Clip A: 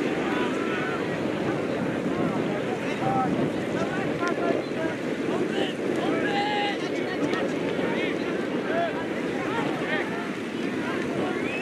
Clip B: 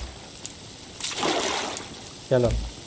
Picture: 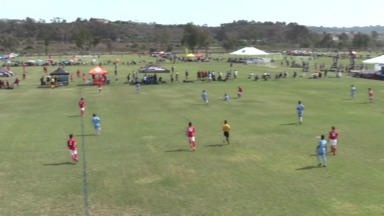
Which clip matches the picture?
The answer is A